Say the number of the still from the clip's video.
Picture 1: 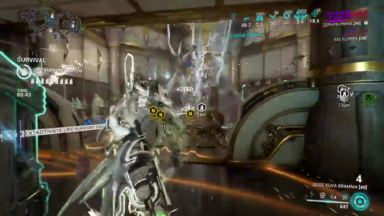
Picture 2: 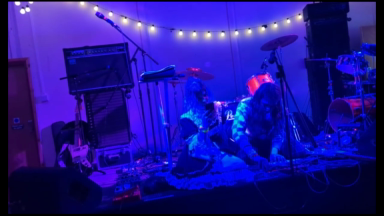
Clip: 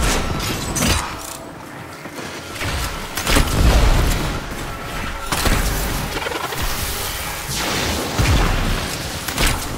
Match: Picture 1